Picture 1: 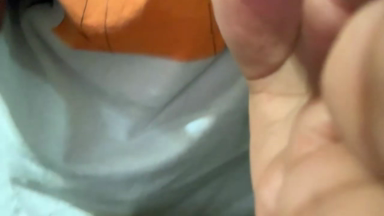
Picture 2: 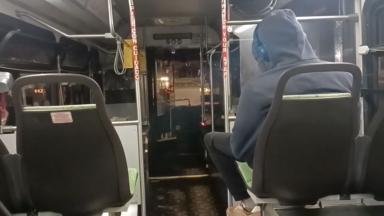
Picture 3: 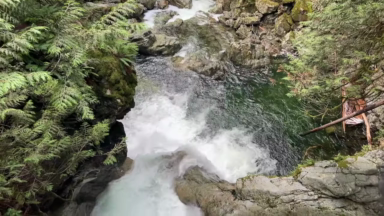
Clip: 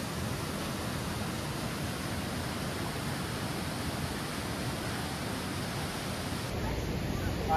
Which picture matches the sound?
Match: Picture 3